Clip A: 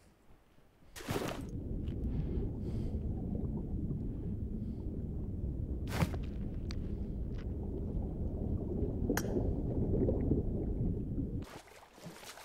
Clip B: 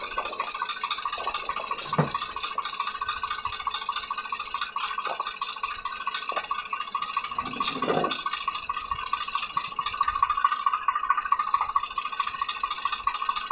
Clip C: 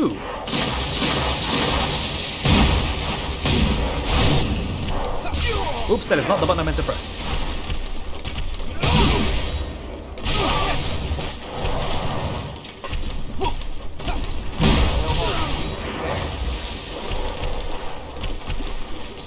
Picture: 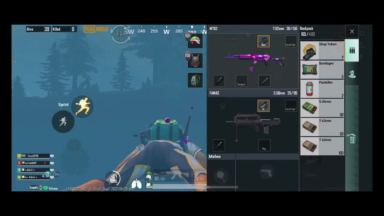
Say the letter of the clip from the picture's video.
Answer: A